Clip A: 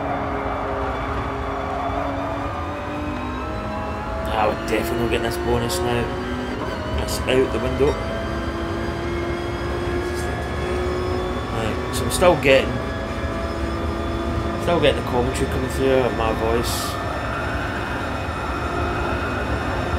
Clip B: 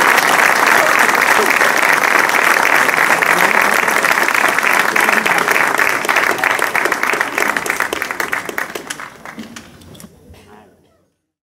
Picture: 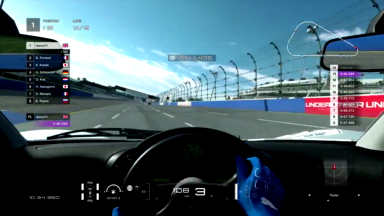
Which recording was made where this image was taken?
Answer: A